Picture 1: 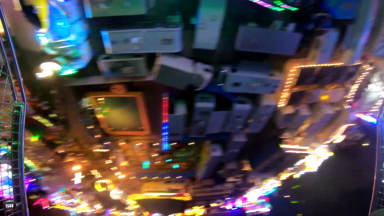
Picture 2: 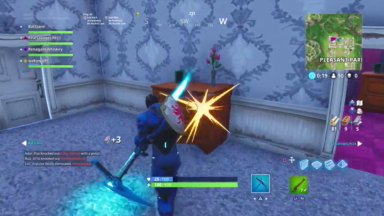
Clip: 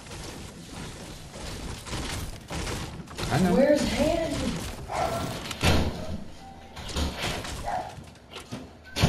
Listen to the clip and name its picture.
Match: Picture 2